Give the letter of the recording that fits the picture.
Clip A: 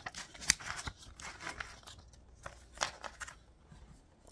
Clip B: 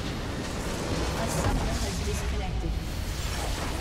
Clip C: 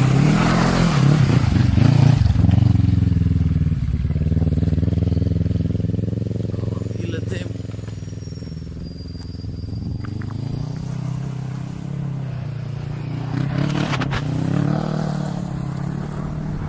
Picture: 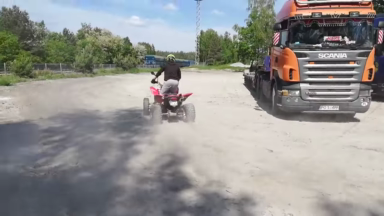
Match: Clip C